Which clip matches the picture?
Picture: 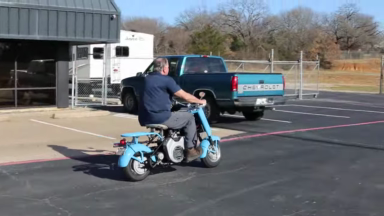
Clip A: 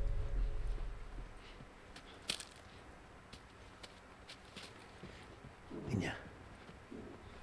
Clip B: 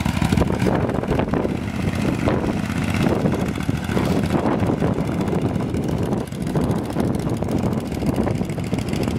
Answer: B